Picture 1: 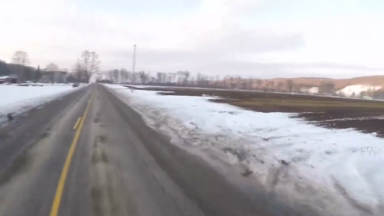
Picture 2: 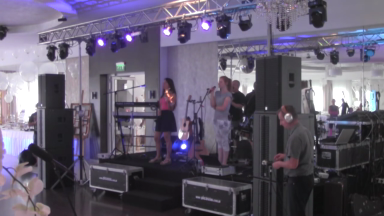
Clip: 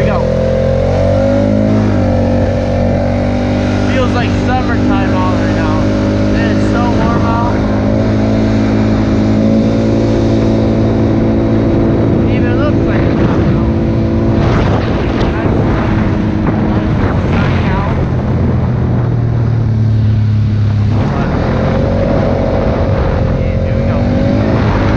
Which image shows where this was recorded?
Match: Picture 1